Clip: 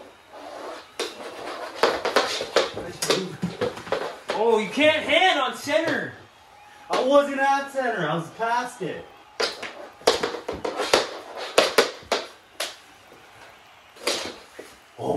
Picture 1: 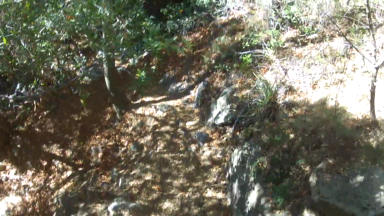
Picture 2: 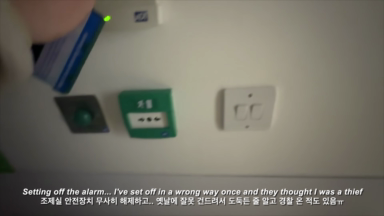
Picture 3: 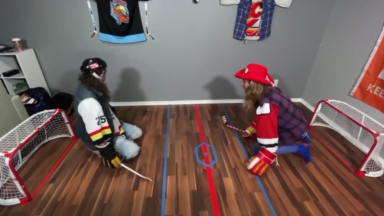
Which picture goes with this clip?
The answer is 3